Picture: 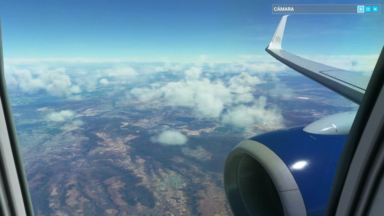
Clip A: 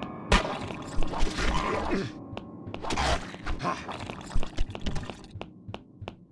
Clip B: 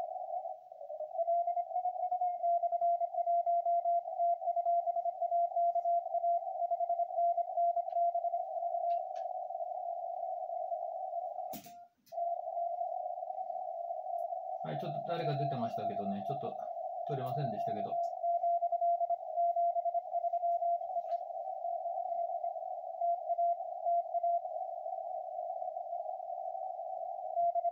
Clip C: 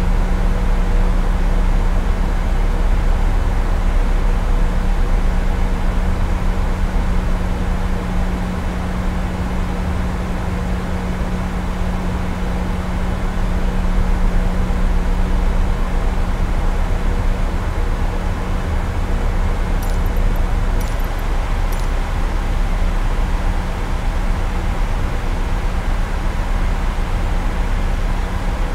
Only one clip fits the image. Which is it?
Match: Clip C